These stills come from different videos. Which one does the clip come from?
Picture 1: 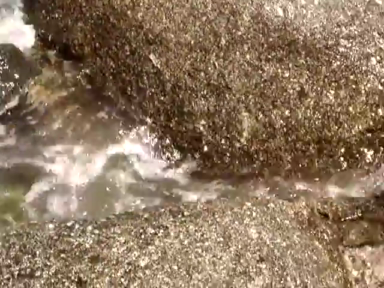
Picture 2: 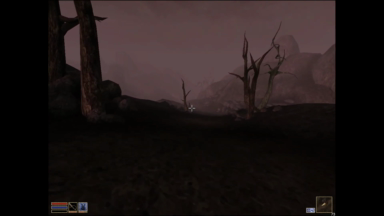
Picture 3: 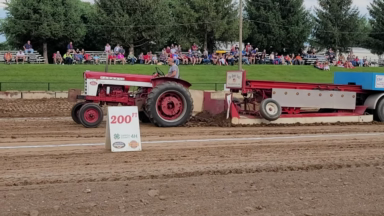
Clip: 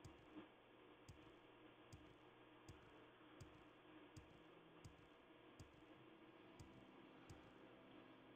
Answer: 2